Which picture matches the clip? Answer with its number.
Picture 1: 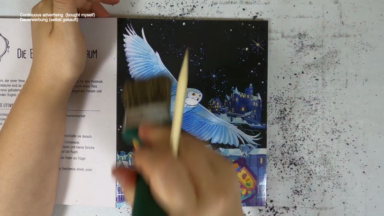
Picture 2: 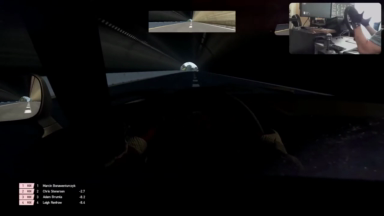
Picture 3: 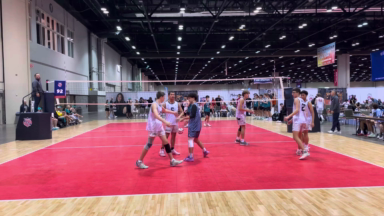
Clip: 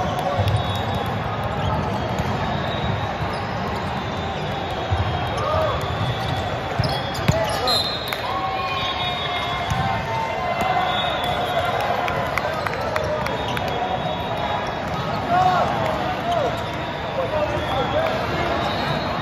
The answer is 3